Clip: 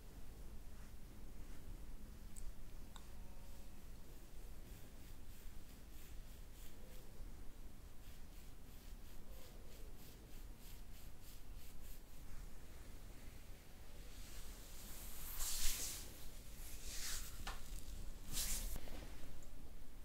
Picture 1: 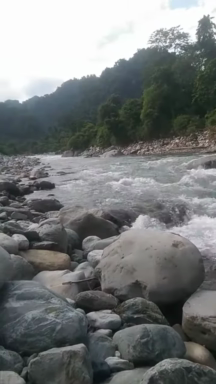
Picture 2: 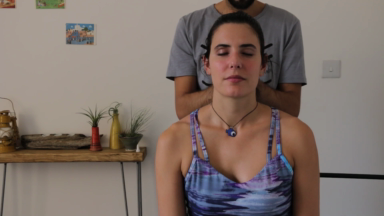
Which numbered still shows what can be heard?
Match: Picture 2